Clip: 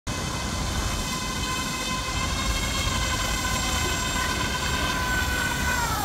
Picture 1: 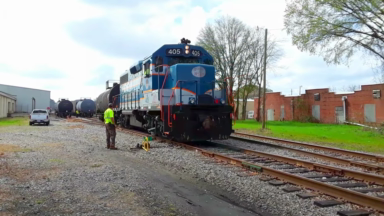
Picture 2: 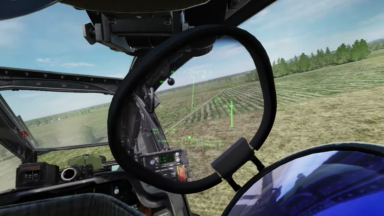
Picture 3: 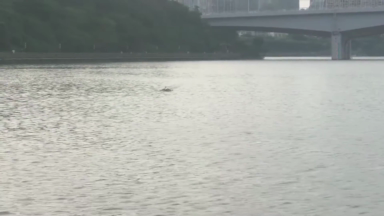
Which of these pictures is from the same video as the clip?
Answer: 3